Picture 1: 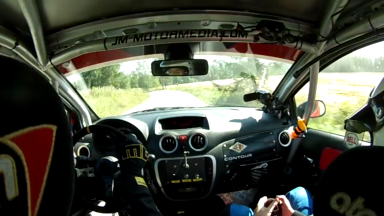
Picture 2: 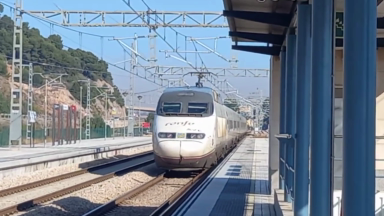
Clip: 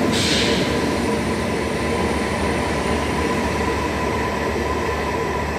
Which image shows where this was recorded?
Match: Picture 2